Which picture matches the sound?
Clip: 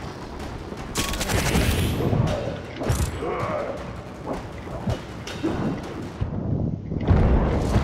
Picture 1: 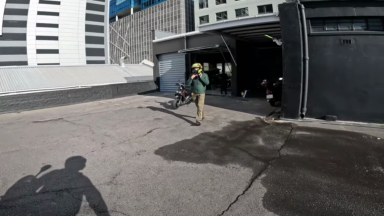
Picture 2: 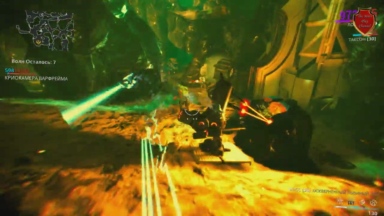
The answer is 2